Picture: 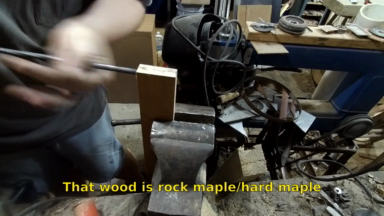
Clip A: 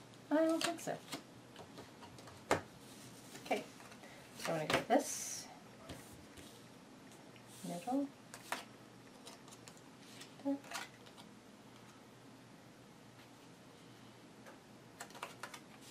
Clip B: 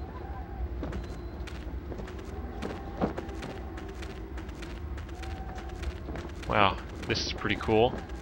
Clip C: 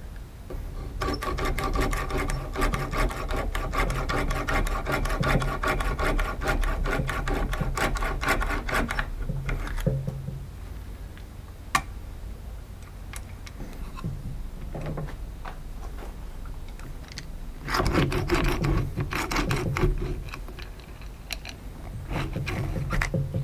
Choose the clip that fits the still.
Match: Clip C